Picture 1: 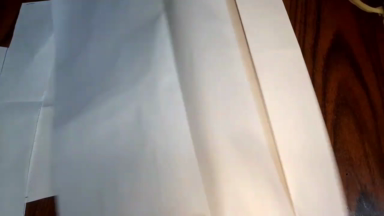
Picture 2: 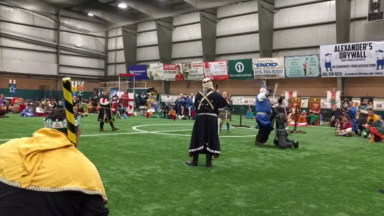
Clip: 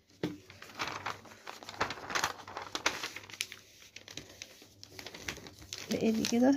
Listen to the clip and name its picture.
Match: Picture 1